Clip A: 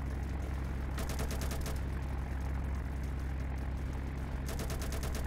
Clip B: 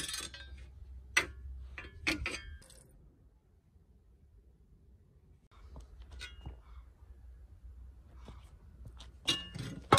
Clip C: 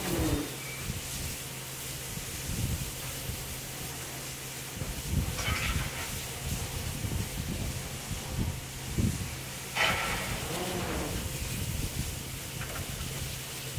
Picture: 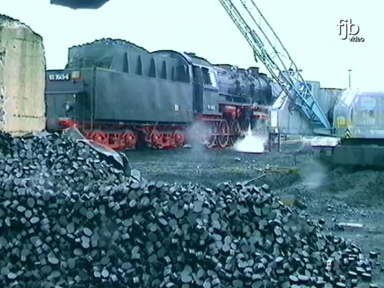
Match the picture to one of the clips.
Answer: C